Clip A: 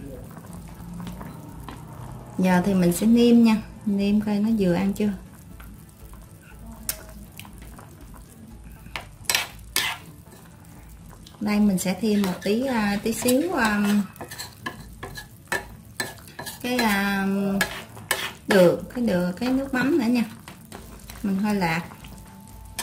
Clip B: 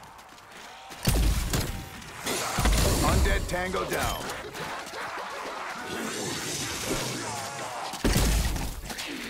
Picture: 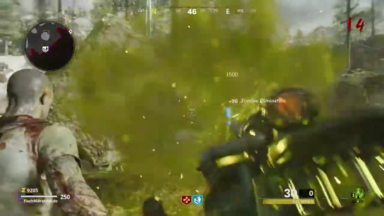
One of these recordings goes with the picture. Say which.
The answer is B